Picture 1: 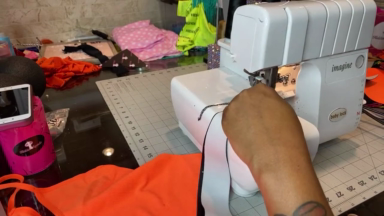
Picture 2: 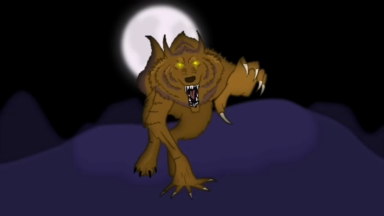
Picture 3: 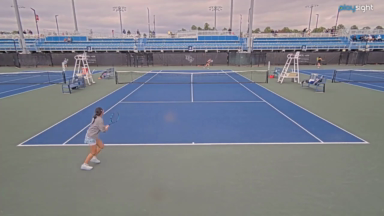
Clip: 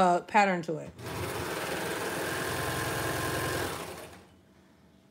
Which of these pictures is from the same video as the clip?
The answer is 1